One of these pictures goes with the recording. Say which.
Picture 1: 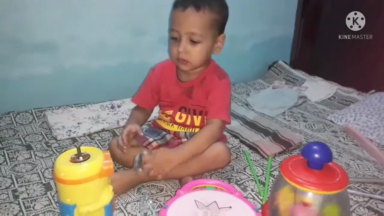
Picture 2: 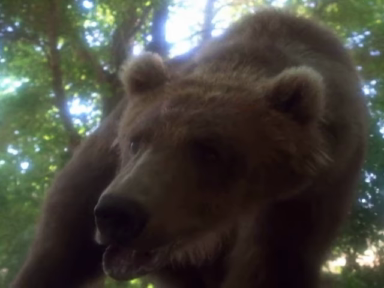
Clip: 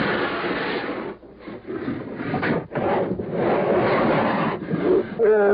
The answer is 2